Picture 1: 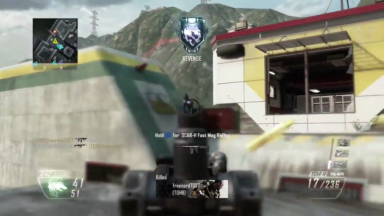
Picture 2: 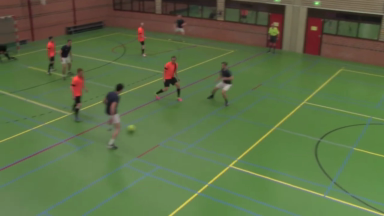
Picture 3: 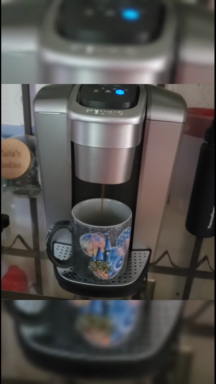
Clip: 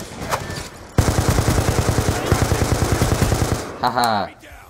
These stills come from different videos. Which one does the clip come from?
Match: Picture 1